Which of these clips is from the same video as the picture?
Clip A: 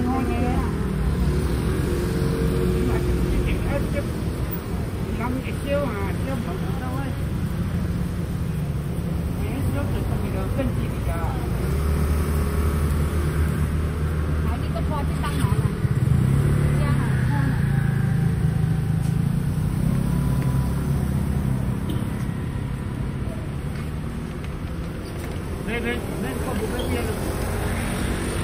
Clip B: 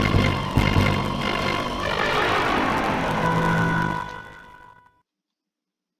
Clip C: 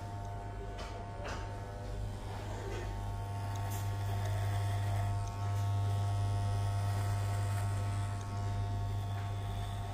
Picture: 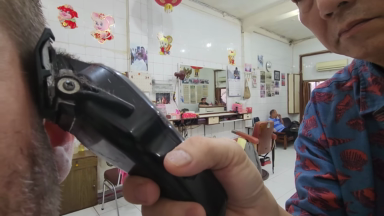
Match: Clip C